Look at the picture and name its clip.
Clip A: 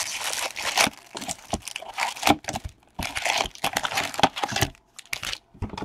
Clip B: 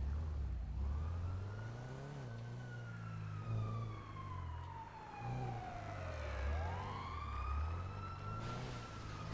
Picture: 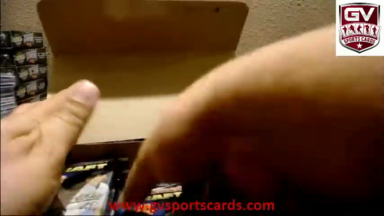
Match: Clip A